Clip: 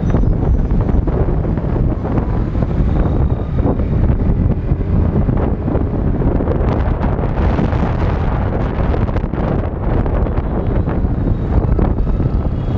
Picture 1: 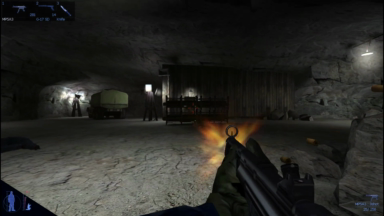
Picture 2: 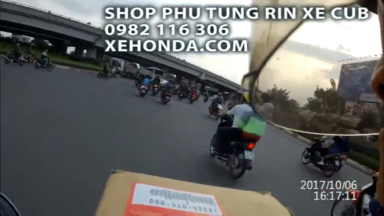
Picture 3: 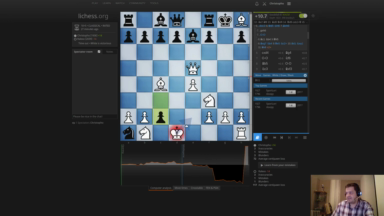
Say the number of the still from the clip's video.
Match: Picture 2